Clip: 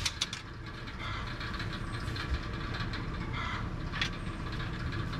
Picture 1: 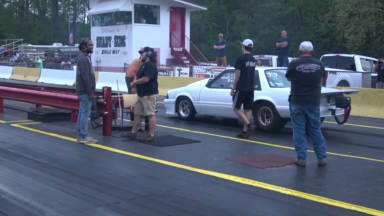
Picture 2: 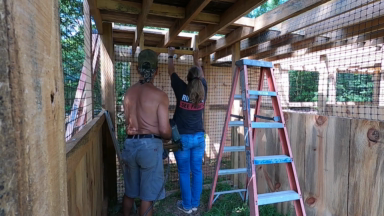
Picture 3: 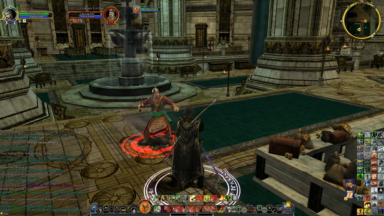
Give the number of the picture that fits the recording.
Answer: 2